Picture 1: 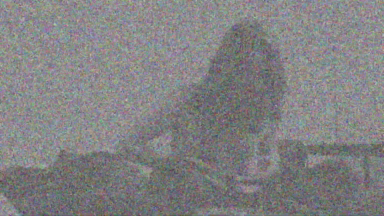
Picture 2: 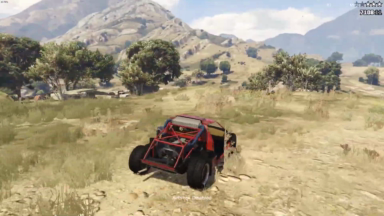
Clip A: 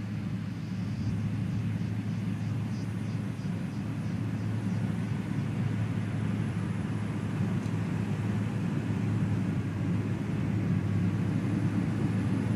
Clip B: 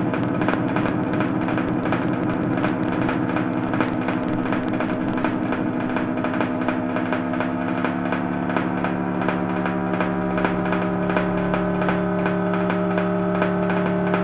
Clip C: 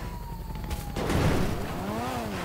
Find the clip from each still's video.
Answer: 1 B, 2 C